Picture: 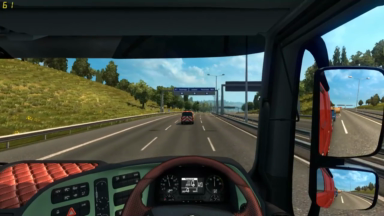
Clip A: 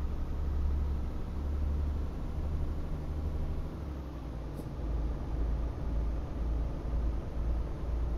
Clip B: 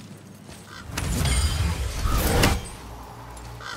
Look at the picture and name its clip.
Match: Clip A